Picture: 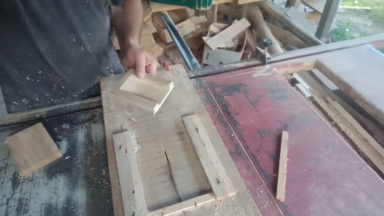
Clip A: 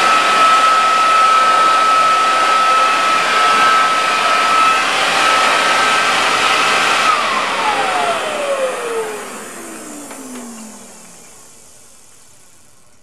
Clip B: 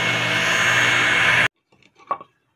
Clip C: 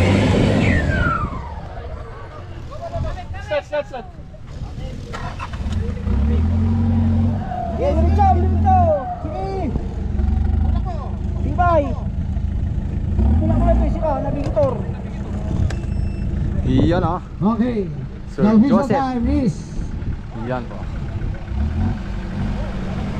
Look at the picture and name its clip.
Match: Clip B